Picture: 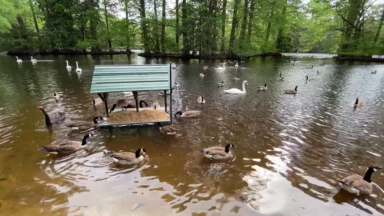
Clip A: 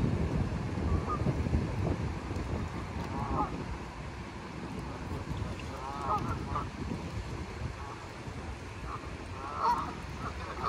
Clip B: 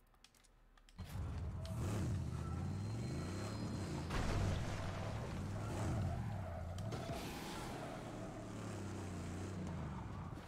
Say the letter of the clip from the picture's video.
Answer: A